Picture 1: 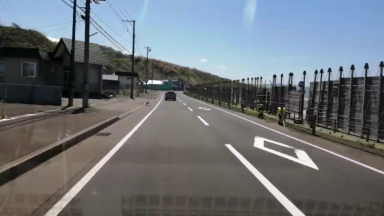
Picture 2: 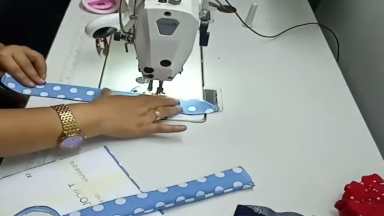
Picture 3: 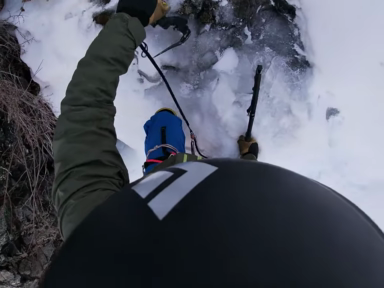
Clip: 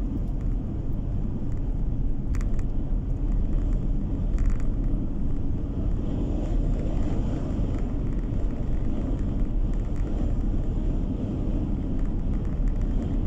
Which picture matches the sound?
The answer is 1